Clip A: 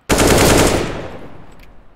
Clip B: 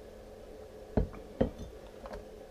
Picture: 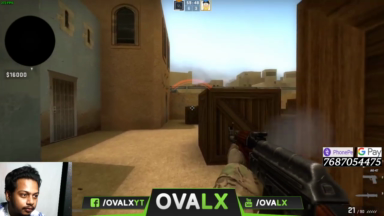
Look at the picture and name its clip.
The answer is A